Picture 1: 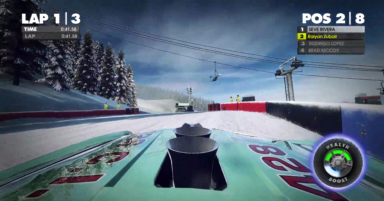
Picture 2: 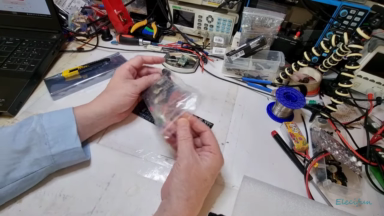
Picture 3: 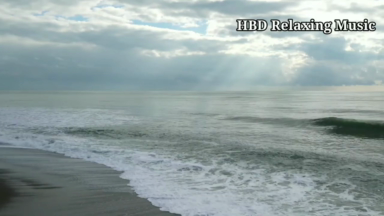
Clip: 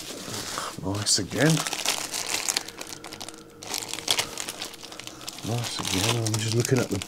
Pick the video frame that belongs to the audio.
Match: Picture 2